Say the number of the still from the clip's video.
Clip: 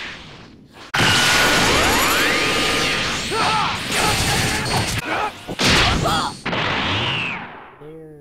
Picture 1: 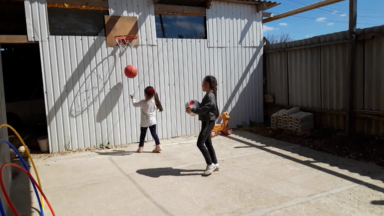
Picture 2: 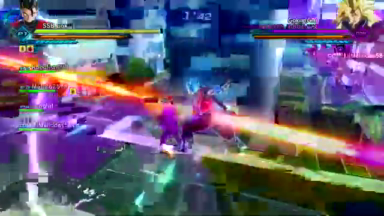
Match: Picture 2